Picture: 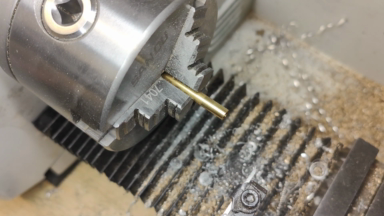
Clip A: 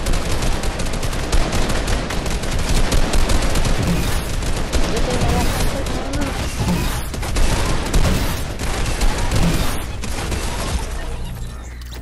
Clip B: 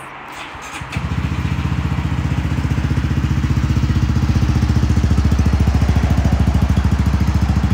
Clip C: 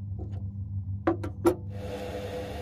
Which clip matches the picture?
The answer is C